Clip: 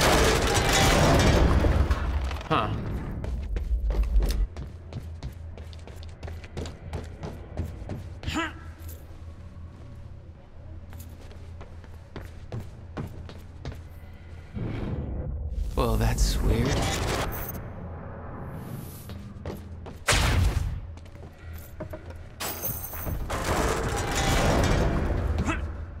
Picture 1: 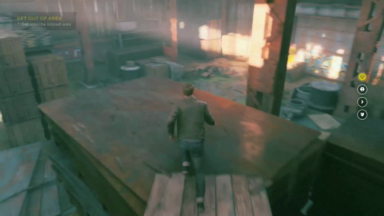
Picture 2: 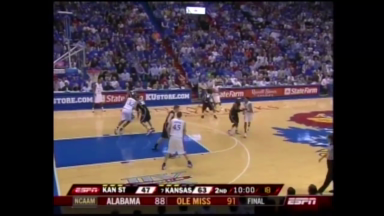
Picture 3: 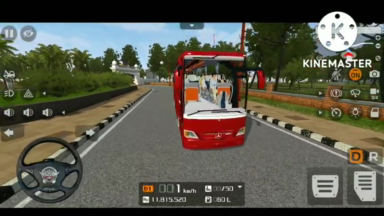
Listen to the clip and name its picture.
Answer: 1